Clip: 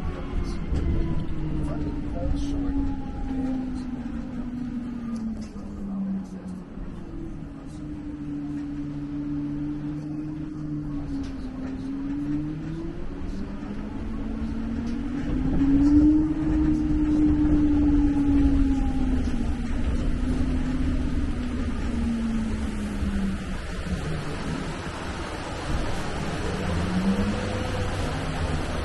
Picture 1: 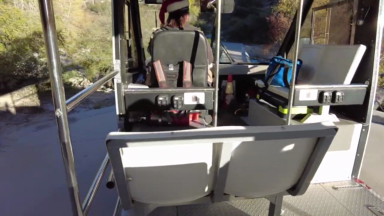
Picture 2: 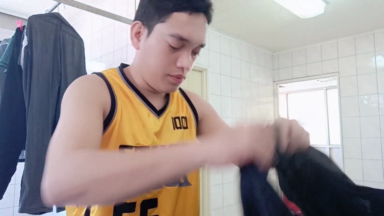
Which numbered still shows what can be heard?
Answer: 1